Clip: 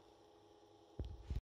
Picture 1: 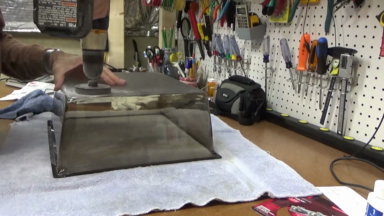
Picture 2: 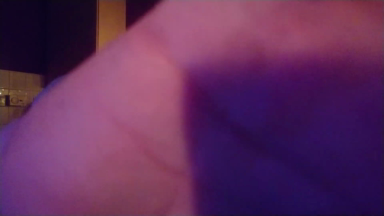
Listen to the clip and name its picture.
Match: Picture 2